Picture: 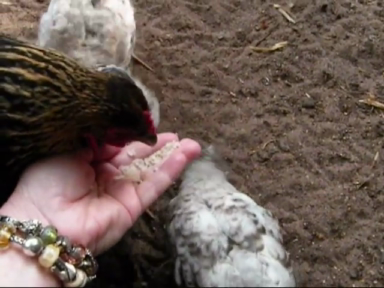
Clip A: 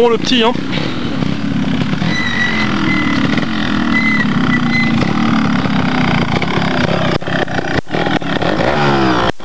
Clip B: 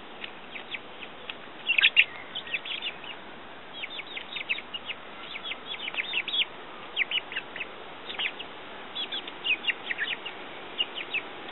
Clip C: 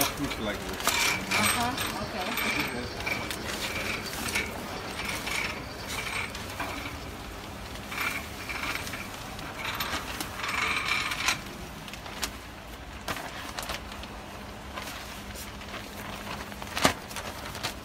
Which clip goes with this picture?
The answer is B